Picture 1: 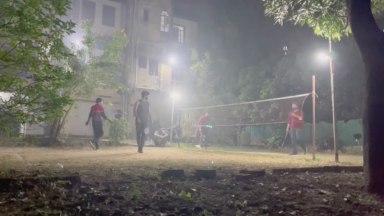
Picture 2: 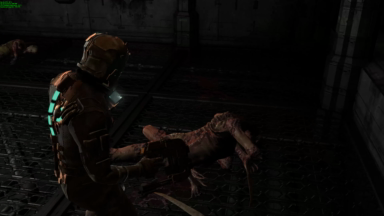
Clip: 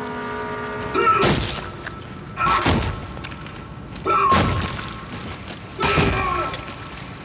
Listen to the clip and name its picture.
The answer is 2